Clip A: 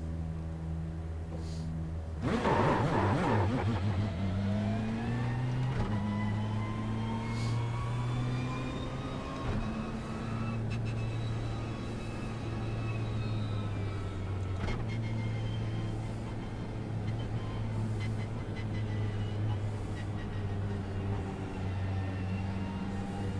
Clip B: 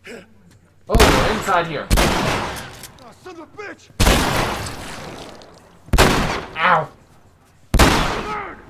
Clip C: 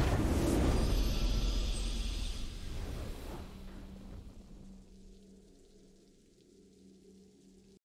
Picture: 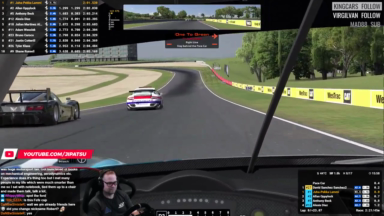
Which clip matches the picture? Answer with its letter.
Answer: A